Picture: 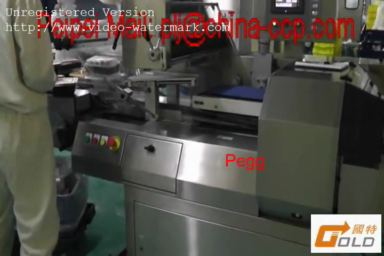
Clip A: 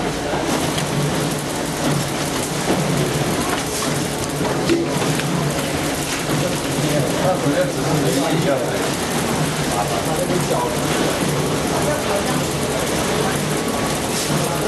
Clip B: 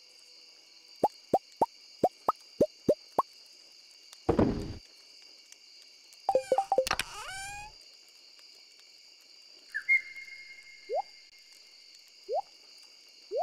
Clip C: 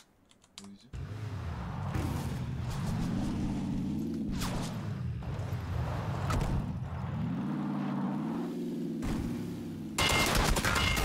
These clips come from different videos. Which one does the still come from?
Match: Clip A